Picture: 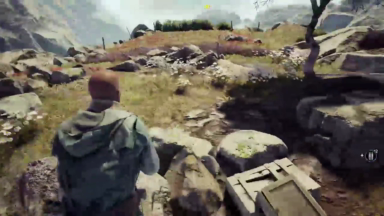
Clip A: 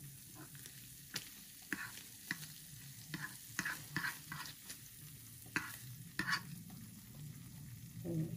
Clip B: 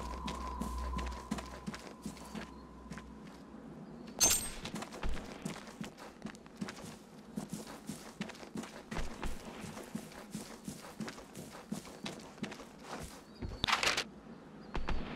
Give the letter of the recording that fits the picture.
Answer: B